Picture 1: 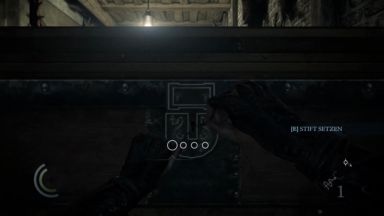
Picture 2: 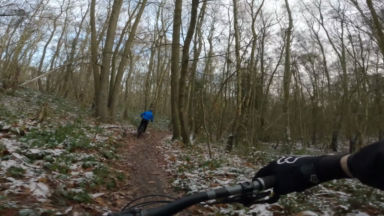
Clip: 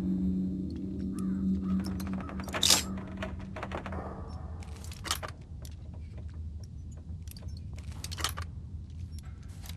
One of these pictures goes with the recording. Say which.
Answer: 1